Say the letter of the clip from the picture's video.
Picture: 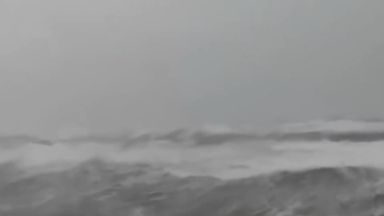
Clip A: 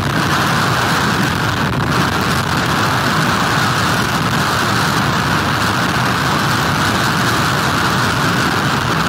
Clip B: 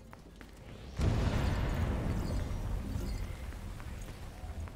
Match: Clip A